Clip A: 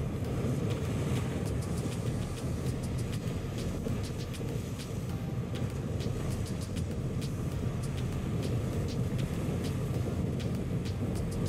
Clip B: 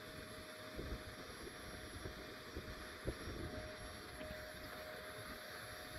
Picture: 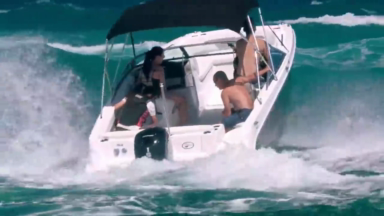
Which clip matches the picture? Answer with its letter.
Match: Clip A